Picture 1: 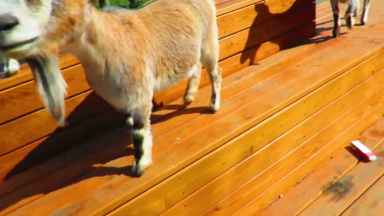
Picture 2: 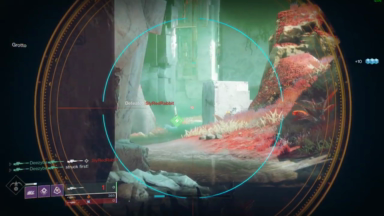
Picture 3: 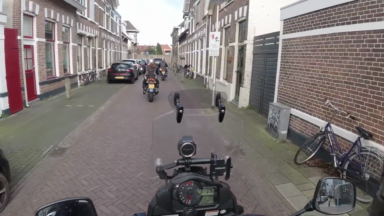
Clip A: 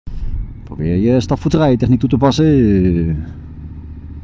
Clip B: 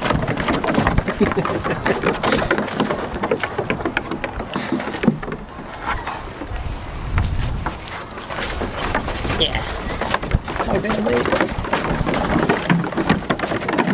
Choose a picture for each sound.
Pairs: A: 3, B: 1